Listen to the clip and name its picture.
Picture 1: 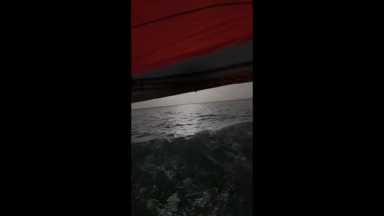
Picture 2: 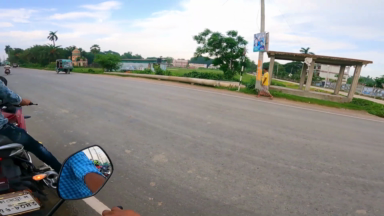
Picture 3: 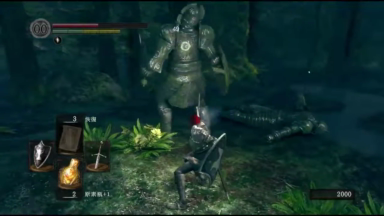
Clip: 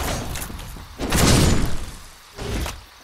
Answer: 3